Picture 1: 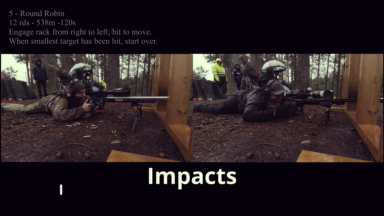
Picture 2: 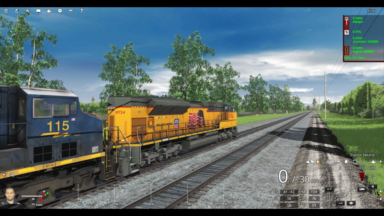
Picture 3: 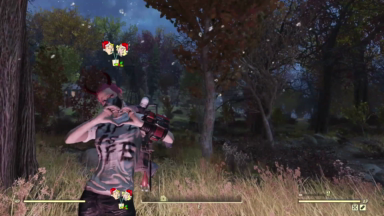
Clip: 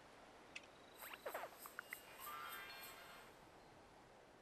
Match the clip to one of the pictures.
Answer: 3